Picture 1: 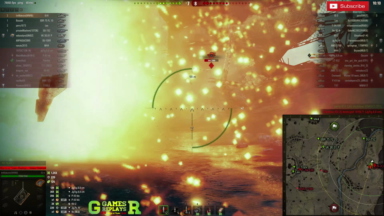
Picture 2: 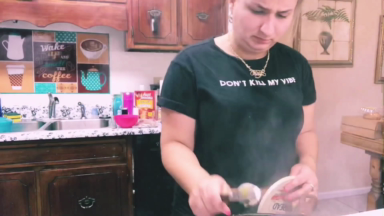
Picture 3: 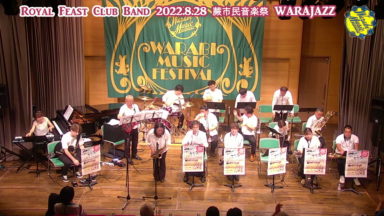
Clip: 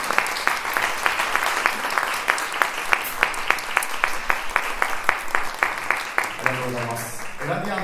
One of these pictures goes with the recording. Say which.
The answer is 3